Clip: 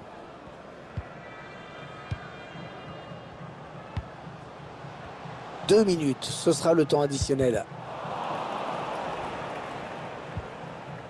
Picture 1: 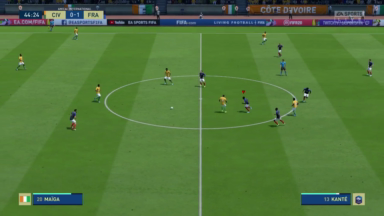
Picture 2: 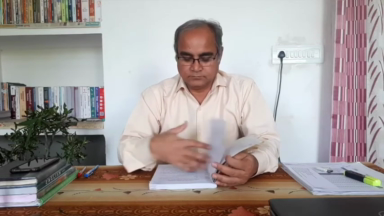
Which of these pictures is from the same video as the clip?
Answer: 1